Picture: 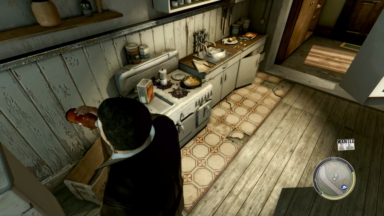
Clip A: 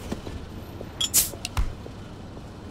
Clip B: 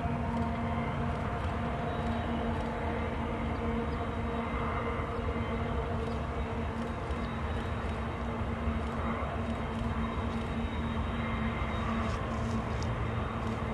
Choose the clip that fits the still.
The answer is A